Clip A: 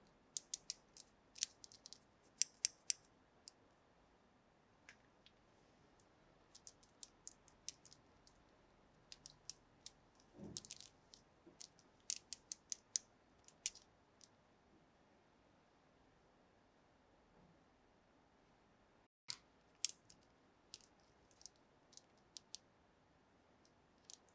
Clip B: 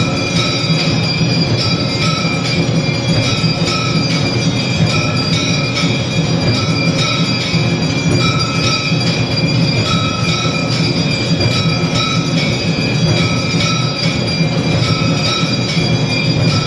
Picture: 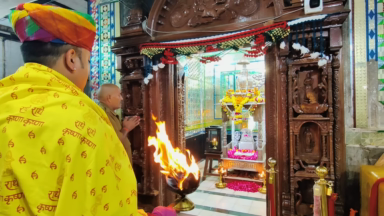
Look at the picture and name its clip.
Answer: B